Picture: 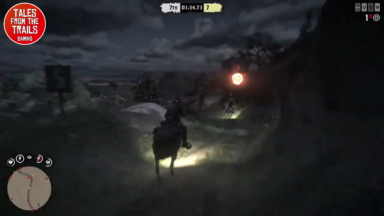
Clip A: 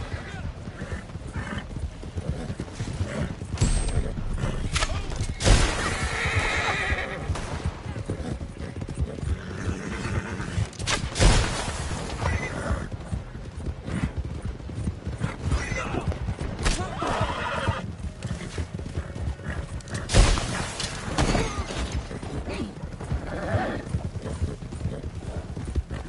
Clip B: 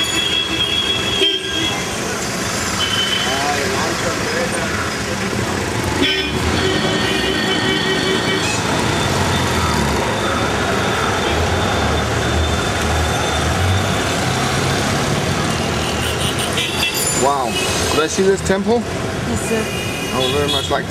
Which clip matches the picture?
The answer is A